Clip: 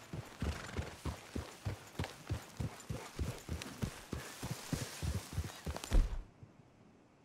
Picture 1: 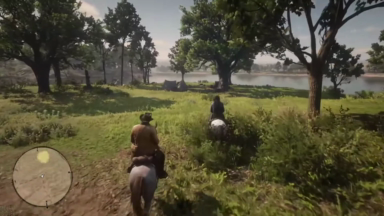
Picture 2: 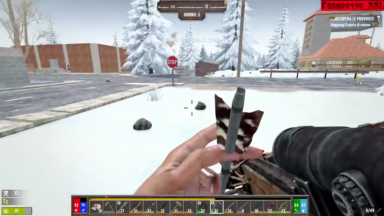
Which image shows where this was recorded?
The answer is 1